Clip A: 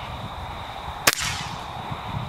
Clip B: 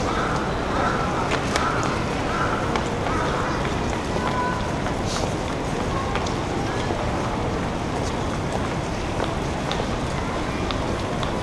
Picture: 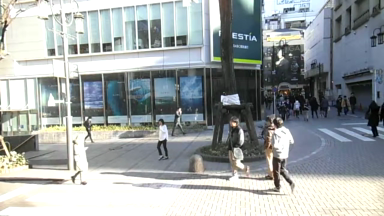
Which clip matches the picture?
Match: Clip B